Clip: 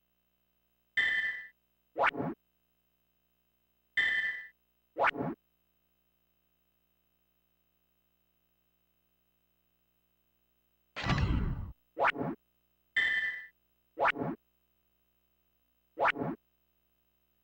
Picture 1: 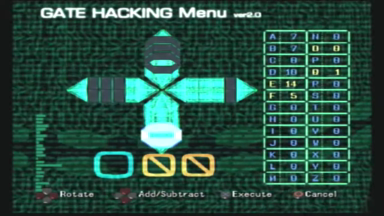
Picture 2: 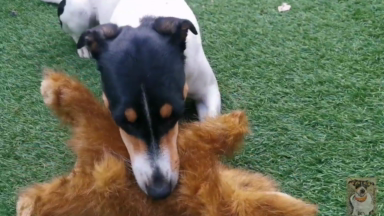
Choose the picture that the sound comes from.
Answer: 1